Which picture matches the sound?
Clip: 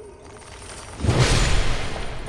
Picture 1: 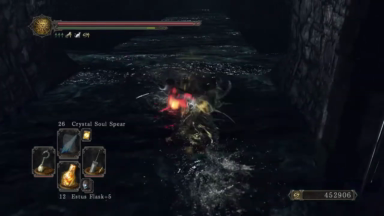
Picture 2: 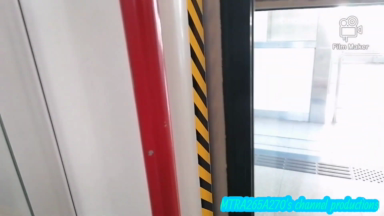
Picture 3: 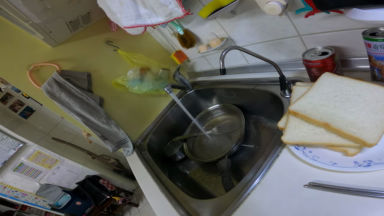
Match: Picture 1